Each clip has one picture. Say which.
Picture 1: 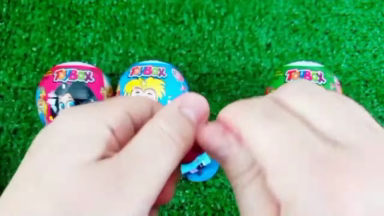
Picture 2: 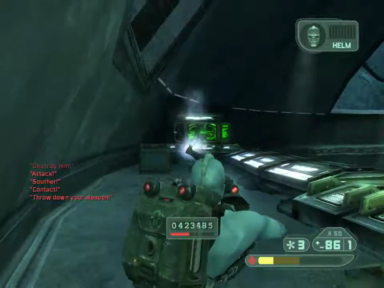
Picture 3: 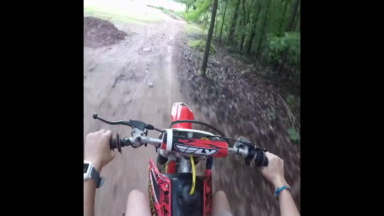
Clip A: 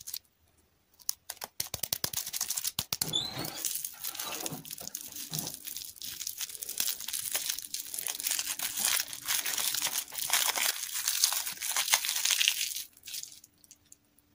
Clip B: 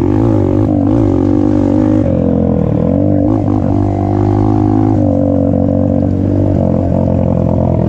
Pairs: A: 1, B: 3